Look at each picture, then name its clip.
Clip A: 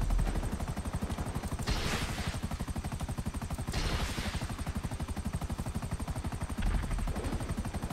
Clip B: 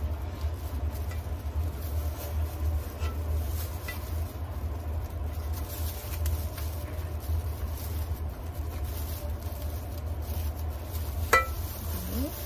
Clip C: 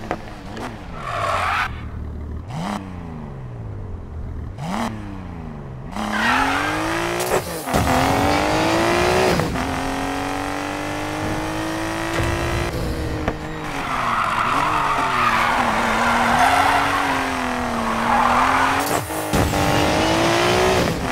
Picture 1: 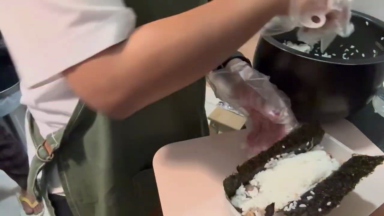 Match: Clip B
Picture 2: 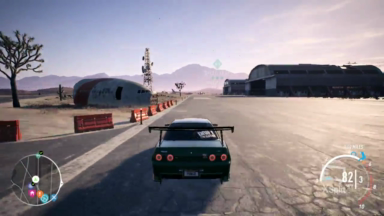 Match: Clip C